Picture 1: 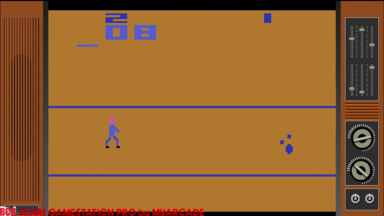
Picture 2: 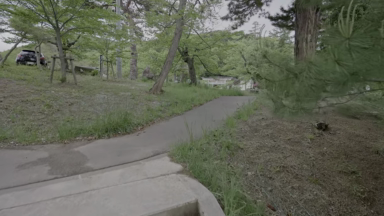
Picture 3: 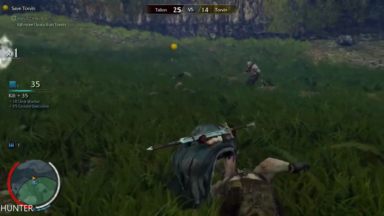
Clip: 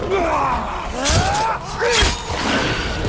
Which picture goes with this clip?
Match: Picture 3